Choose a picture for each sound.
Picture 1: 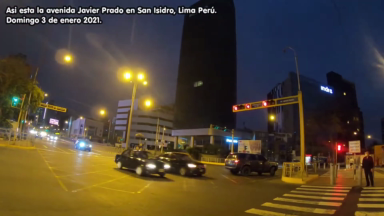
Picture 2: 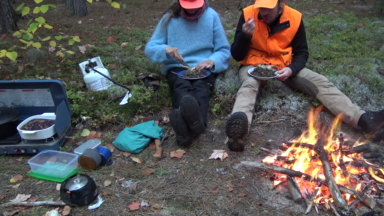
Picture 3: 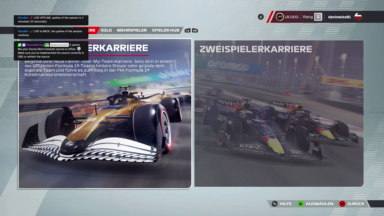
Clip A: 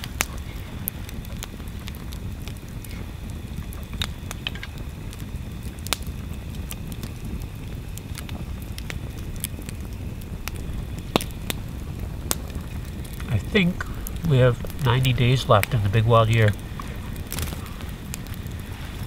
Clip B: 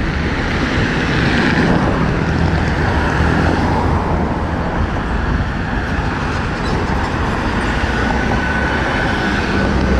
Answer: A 2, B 1